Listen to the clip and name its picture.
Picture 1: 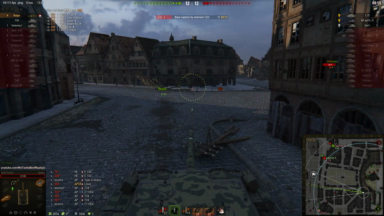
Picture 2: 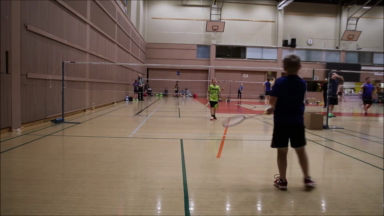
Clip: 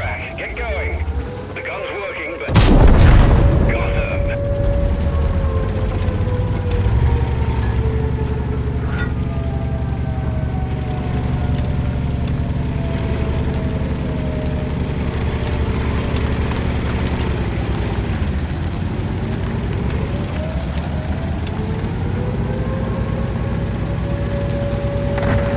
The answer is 1